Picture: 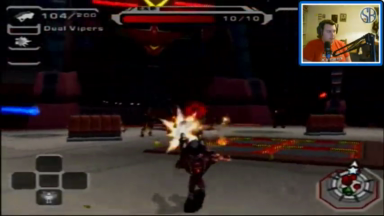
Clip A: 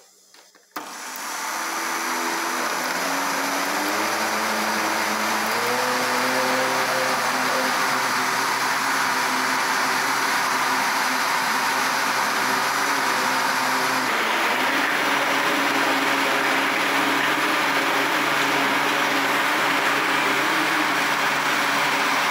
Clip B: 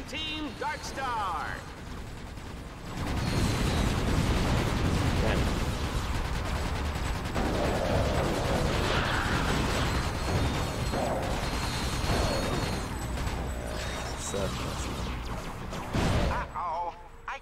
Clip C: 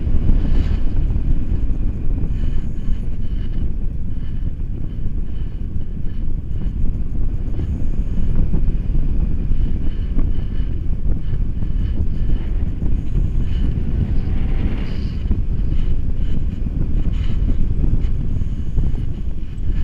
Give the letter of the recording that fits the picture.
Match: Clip B